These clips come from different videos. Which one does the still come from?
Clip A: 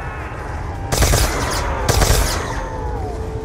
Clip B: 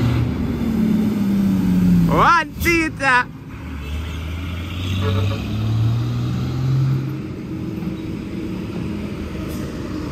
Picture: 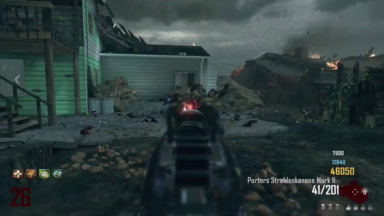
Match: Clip A